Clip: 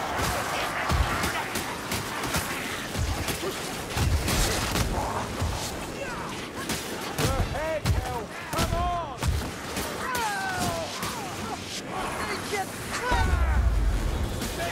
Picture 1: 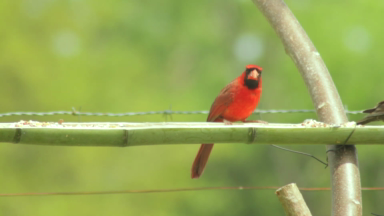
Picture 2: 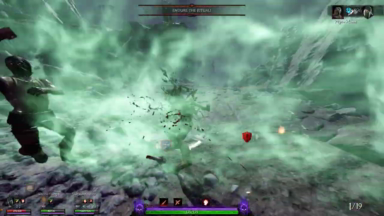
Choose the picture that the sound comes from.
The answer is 2